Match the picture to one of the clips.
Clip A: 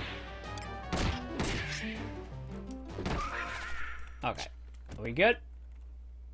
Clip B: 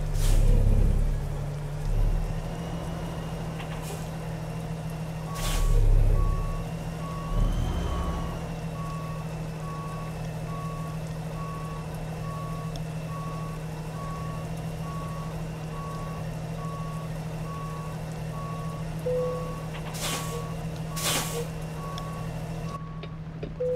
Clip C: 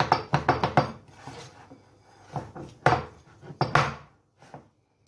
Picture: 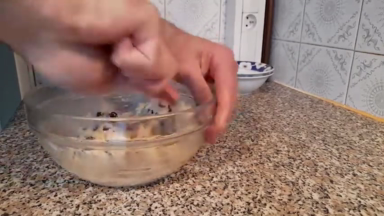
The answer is C